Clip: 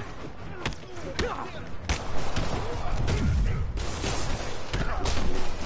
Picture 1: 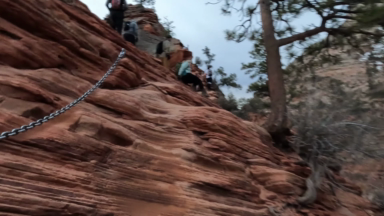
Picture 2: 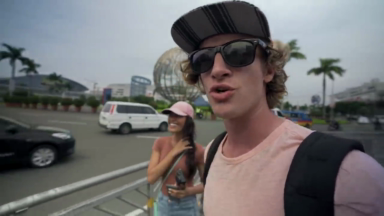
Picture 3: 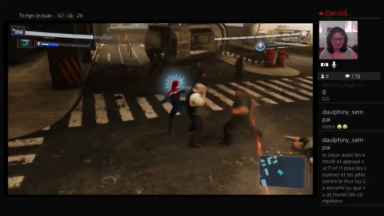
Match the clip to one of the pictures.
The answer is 3